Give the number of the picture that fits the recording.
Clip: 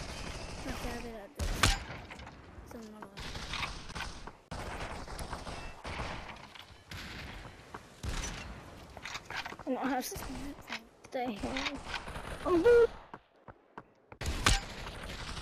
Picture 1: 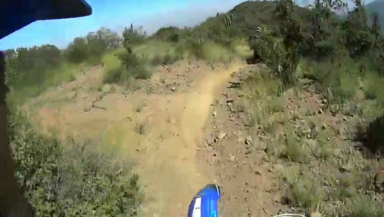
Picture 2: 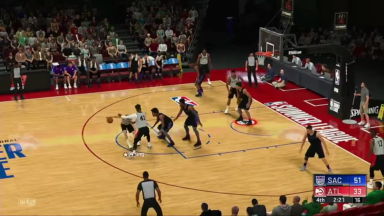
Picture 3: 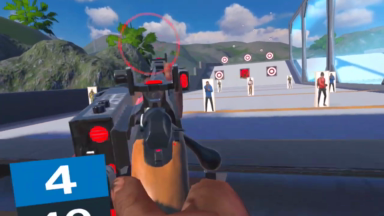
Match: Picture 3